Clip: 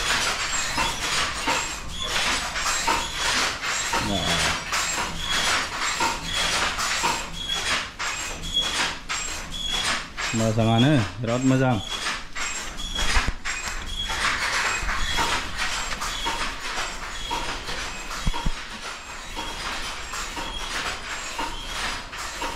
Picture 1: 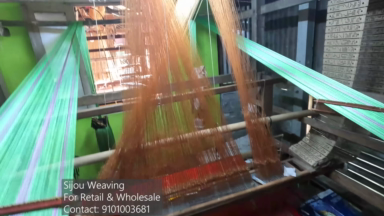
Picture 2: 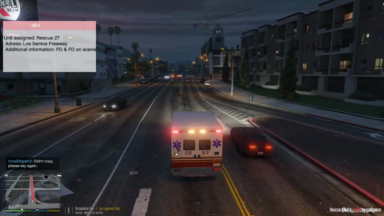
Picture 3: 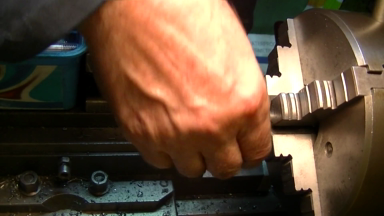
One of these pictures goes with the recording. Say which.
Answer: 1